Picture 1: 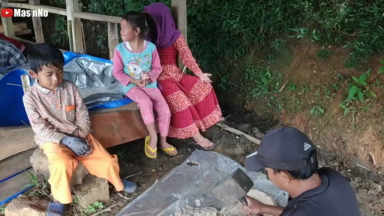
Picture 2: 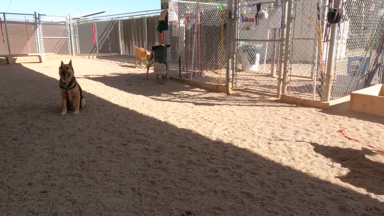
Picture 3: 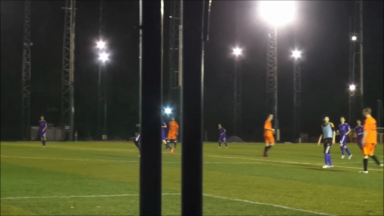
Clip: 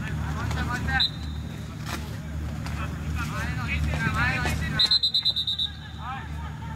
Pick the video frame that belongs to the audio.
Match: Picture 3